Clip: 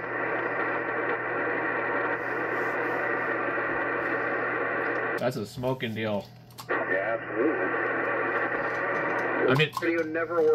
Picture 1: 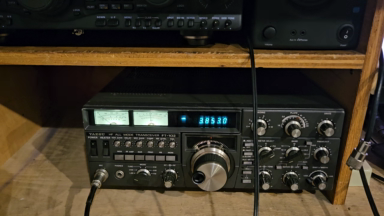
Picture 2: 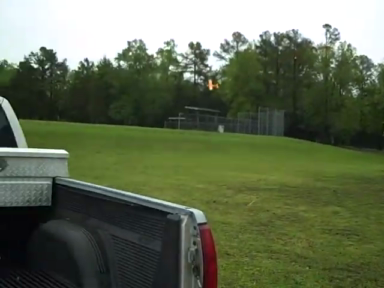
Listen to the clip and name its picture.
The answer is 1